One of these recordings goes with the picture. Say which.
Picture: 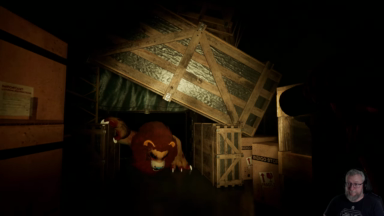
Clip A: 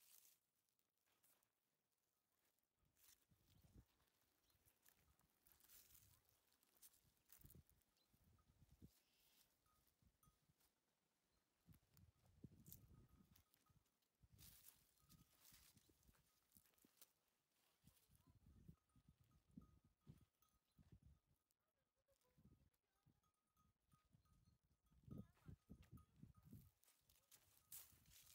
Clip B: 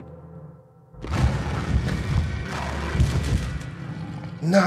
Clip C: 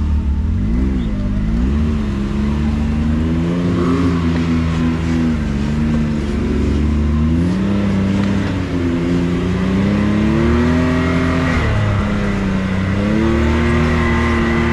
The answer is B